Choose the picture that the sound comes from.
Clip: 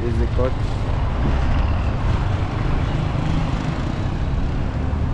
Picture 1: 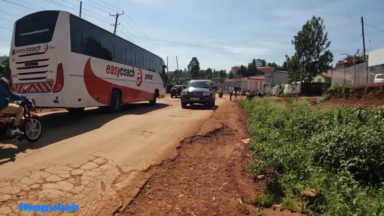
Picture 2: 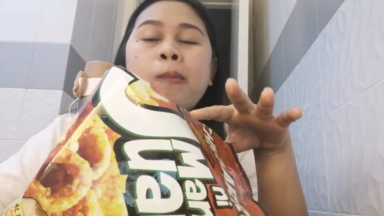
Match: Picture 1